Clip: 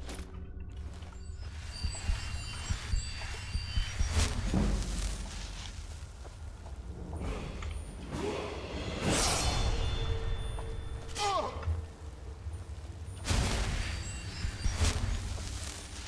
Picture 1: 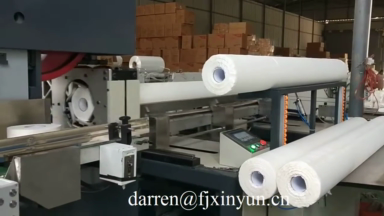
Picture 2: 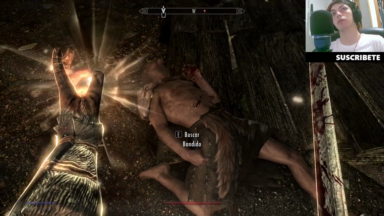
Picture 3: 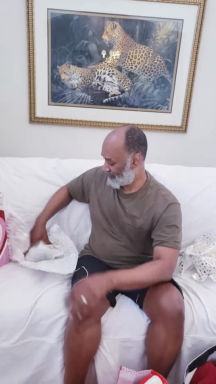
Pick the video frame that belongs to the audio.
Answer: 2